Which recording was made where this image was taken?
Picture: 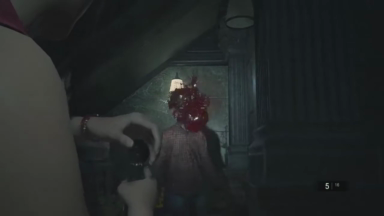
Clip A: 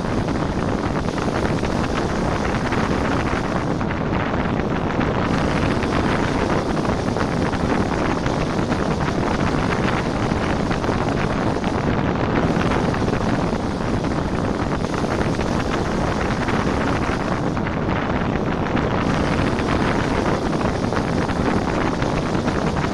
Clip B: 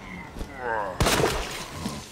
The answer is B